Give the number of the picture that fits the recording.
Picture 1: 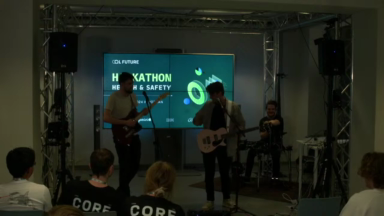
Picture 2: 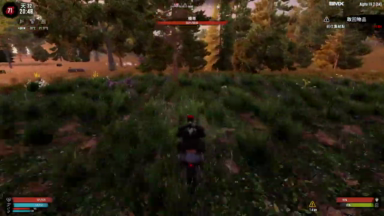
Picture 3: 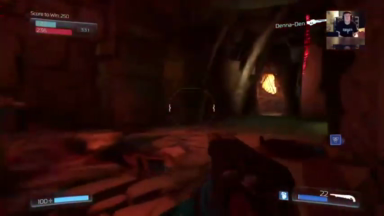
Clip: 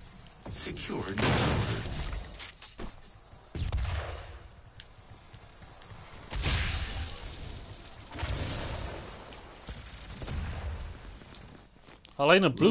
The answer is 3